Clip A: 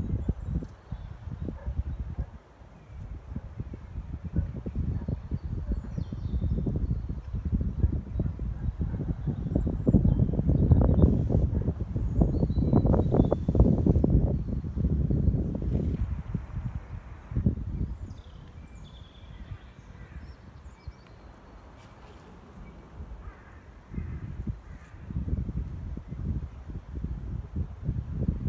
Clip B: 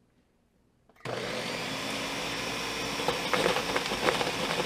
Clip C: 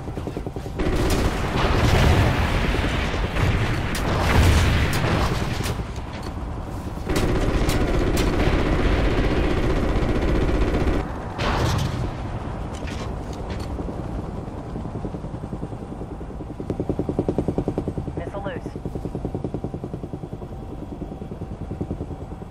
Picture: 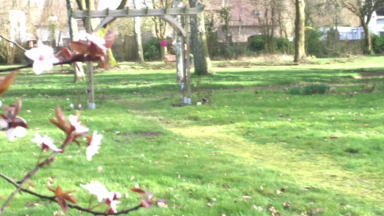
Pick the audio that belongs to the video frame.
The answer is A